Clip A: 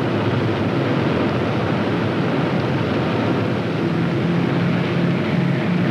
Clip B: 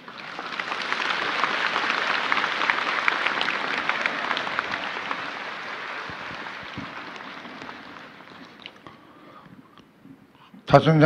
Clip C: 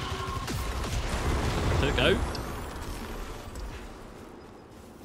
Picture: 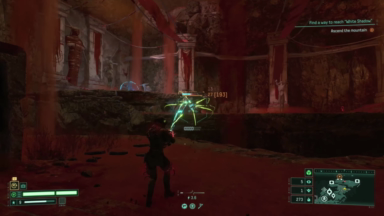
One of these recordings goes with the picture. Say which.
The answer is C